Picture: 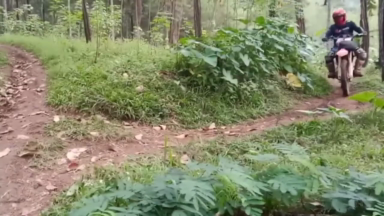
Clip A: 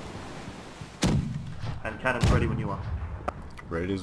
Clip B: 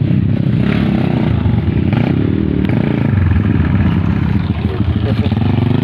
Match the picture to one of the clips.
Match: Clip B